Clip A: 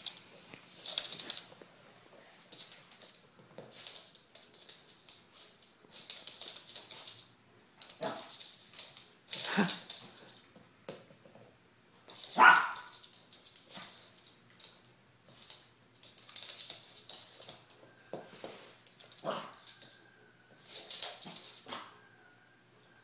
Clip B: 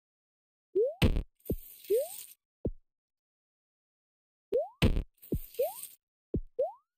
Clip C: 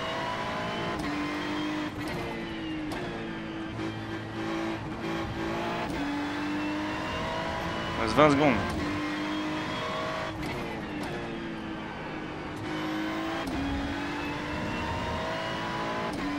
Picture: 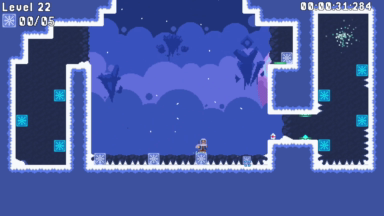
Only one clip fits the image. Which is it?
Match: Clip B